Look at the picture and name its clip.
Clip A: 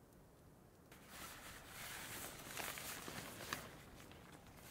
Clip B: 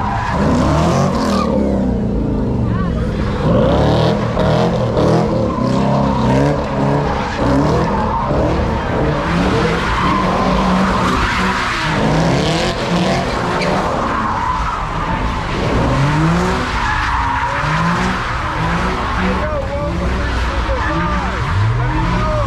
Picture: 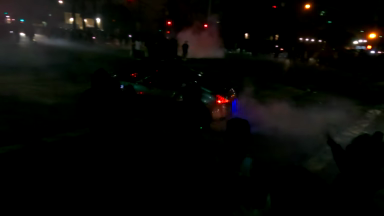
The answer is B